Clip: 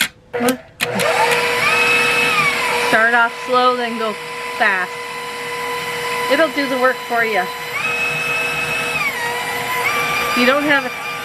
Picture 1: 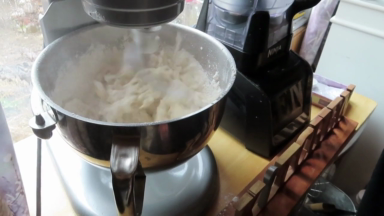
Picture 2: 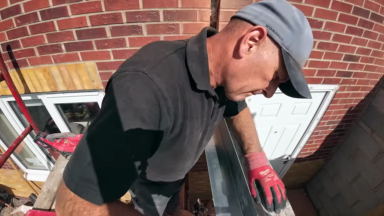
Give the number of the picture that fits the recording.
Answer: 1